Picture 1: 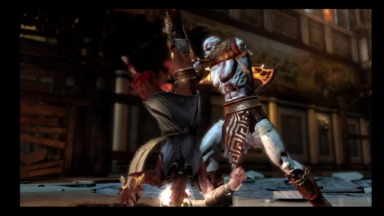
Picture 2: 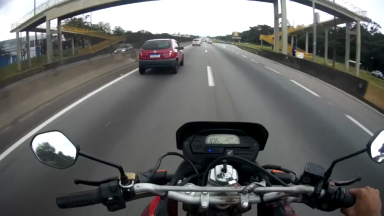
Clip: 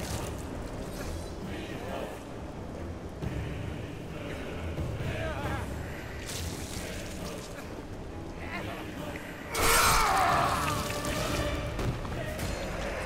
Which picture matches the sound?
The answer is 1